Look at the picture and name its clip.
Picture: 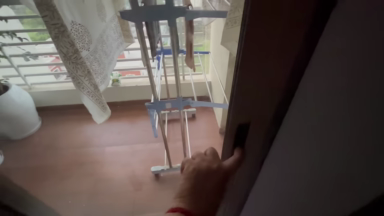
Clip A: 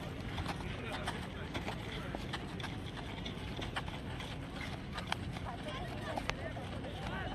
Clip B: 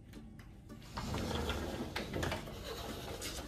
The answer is B